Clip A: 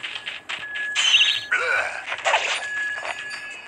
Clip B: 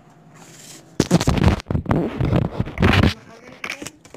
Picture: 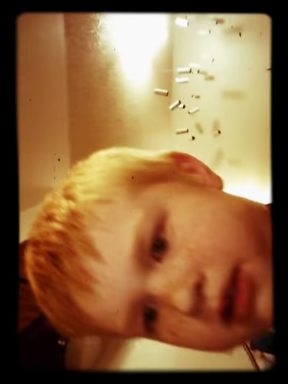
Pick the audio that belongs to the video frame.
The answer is B